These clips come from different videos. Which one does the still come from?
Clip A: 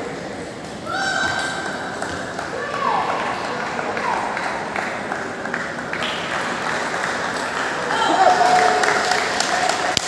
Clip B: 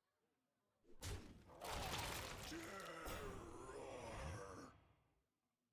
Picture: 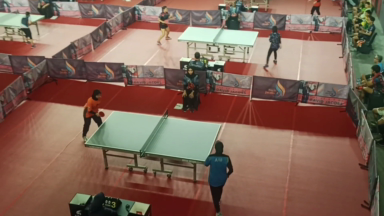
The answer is A